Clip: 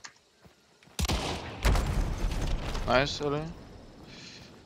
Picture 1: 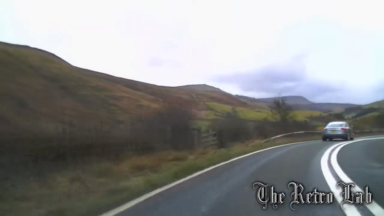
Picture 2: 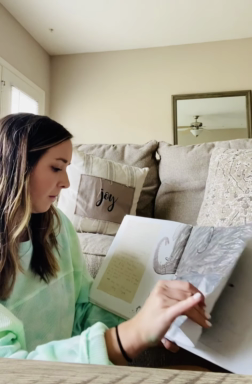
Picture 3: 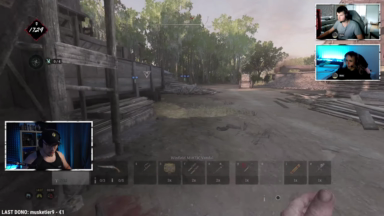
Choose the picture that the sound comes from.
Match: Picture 3